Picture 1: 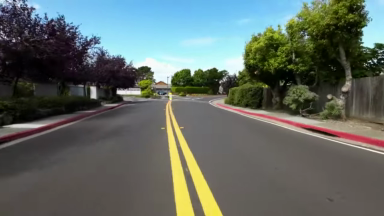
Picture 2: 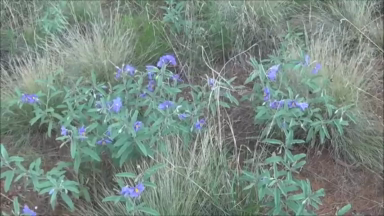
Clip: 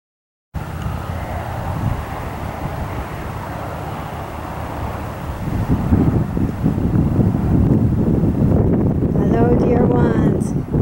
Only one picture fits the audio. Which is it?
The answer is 2